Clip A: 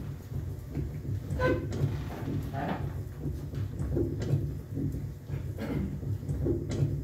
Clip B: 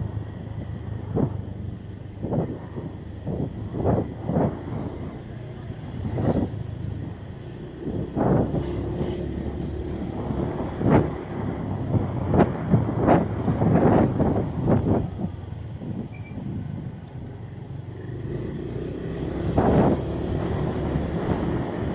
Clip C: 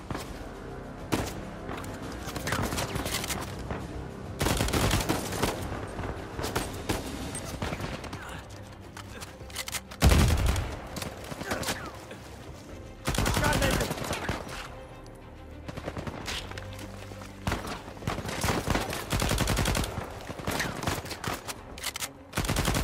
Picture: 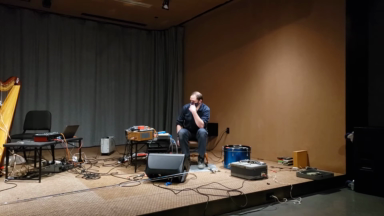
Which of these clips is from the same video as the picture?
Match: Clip A